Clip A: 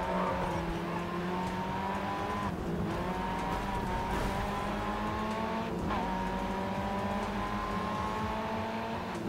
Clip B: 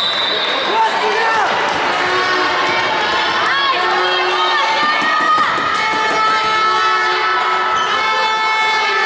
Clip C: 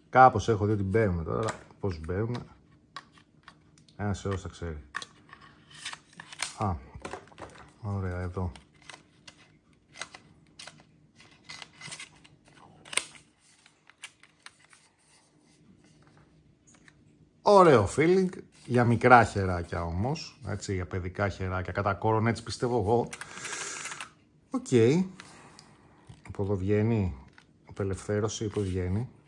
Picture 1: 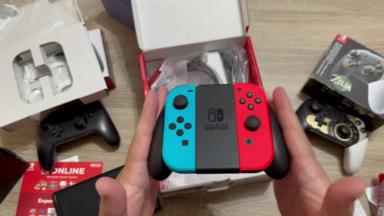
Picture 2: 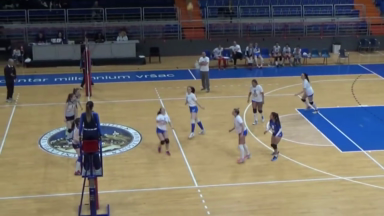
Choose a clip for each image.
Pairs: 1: C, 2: B